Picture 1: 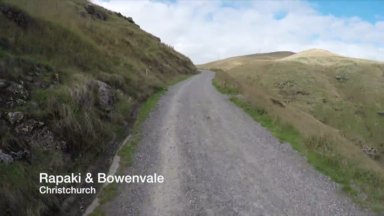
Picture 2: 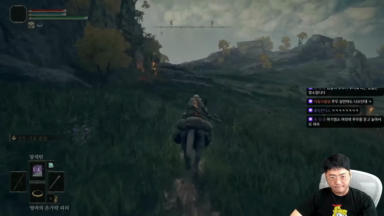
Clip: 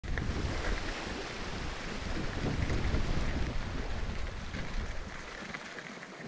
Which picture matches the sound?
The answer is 1